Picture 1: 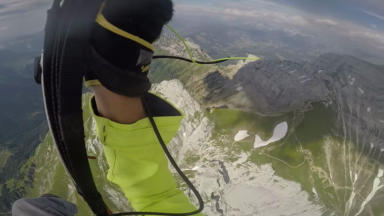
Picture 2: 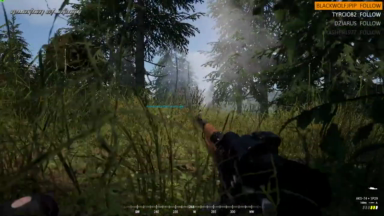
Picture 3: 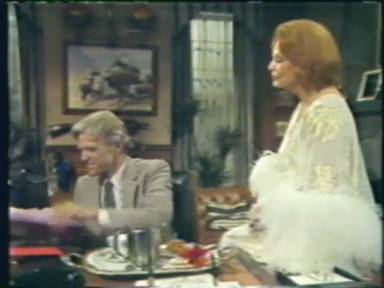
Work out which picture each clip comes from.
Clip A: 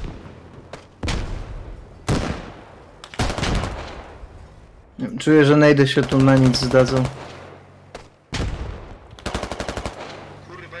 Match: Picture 2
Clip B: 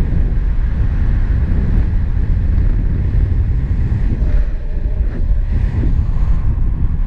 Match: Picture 1